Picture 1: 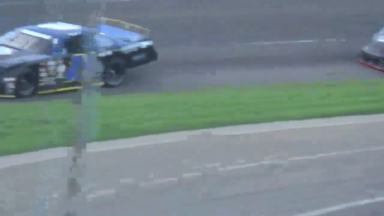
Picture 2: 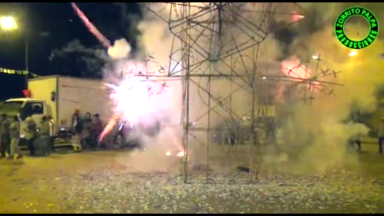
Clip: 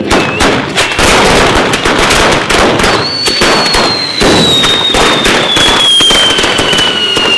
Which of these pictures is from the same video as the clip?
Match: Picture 2